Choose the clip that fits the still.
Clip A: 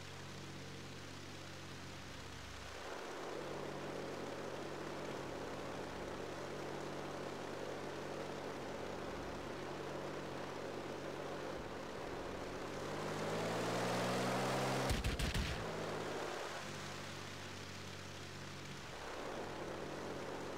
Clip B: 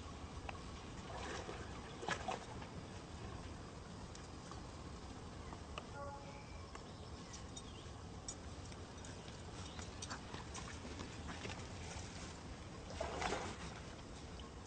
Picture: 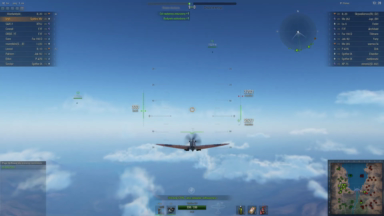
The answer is A